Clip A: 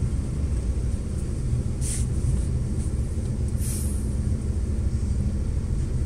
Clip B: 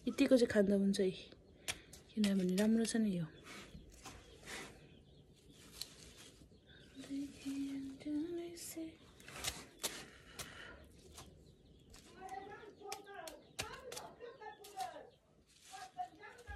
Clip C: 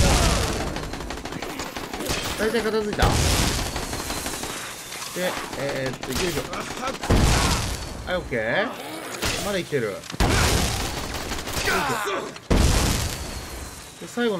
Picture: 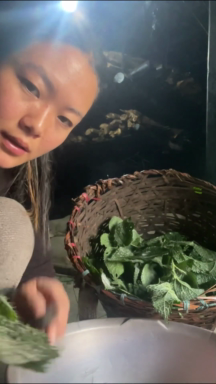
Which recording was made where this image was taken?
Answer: B